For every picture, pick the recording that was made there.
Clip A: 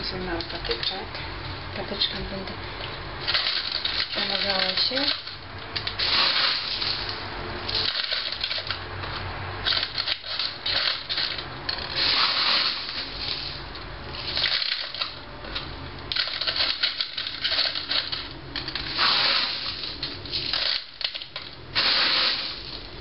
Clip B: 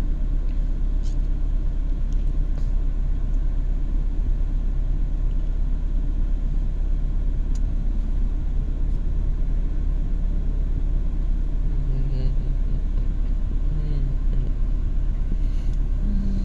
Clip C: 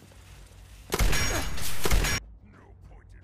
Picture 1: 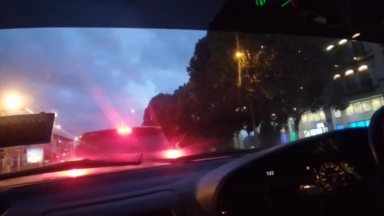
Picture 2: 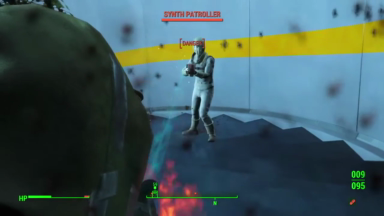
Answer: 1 B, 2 C